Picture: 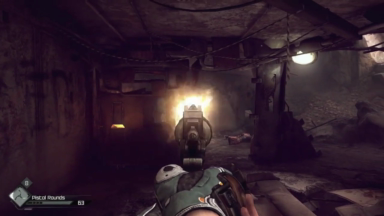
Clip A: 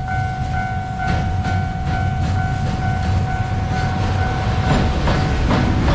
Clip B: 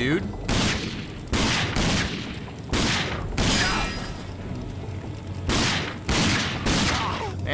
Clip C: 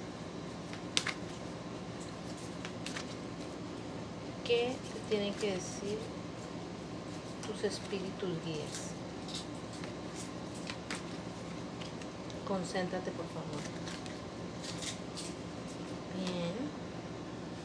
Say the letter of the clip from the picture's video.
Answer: B